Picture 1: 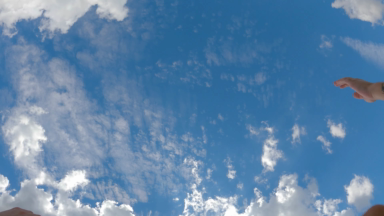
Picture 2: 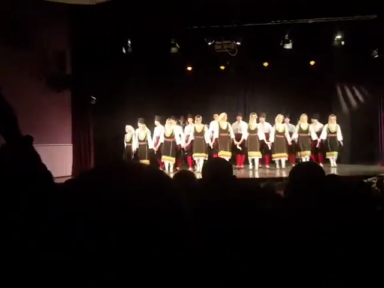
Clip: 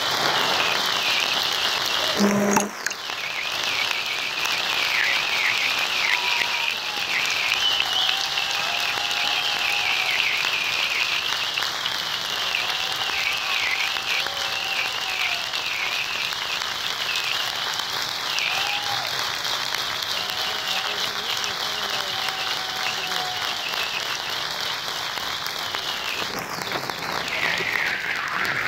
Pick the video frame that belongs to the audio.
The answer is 2